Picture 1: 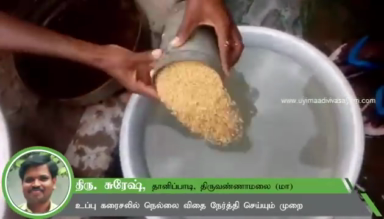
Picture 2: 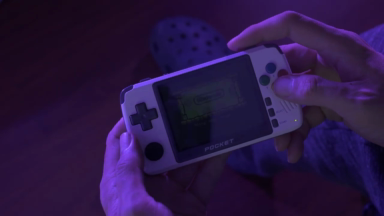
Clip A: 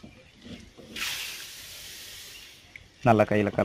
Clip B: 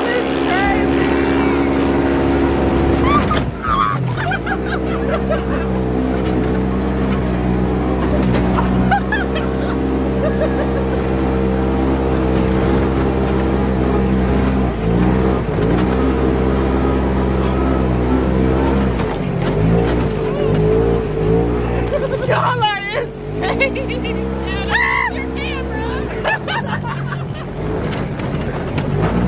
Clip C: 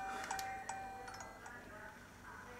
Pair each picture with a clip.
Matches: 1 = A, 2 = C